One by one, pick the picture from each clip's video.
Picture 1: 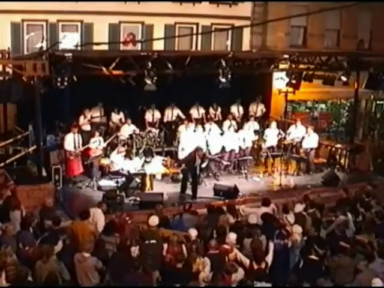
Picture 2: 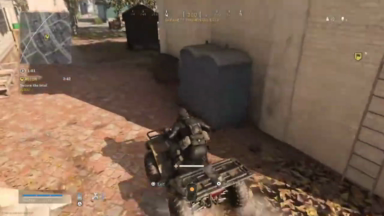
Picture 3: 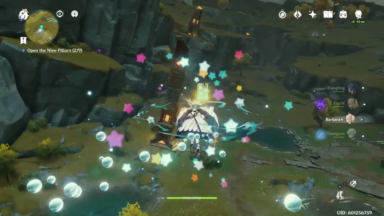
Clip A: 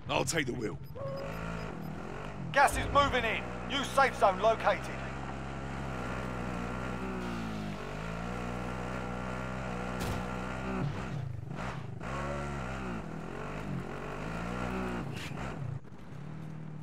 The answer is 2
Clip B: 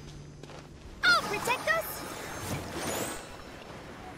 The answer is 3